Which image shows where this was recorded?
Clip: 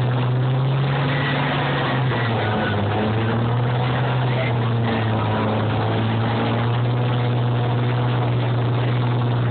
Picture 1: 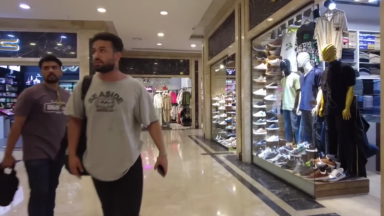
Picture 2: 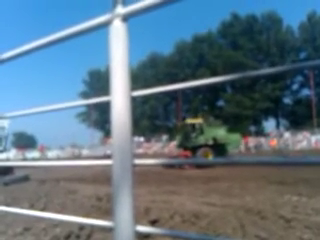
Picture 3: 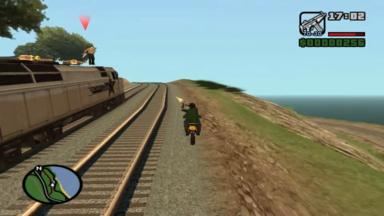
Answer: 2